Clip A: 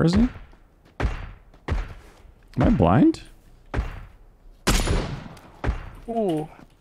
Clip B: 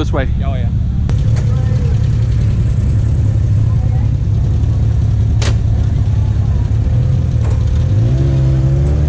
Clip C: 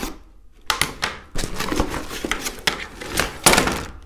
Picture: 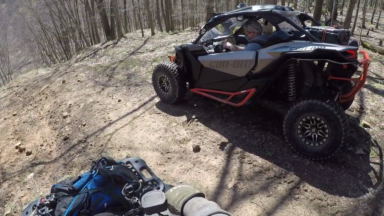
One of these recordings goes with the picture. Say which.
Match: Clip B